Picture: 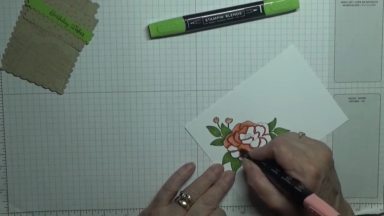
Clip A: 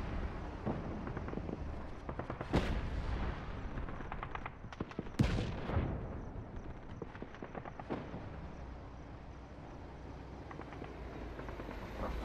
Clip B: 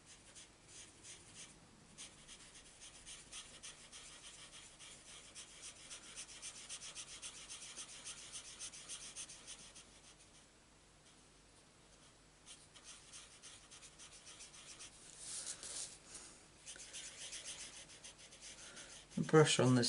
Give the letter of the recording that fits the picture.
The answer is B